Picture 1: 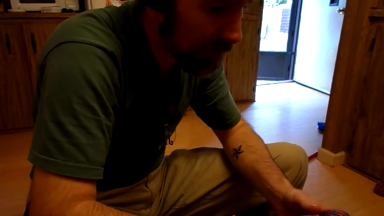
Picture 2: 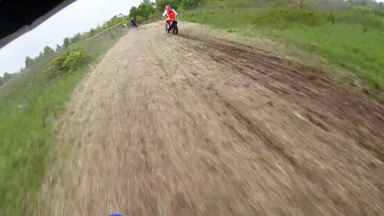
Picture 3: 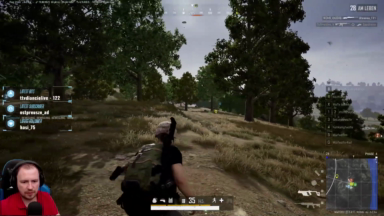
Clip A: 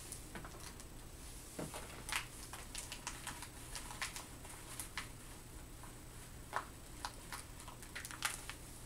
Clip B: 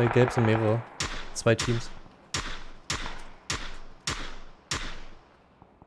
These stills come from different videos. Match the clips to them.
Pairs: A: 1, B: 3